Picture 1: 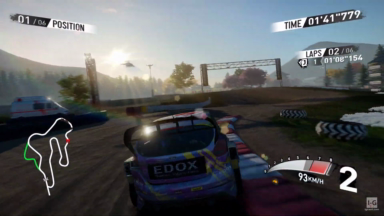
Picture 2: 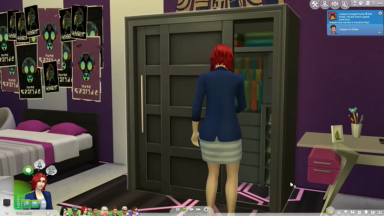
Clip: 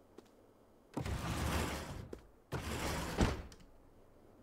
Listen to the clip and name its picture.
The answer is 2